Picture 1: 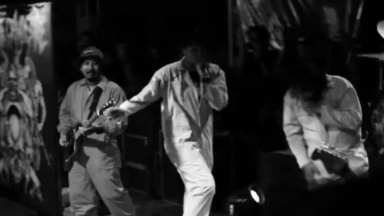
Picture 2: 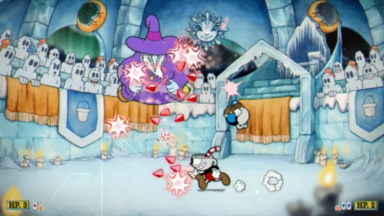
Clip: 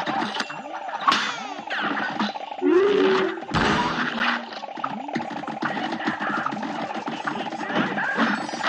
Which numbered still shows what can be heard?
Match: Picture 2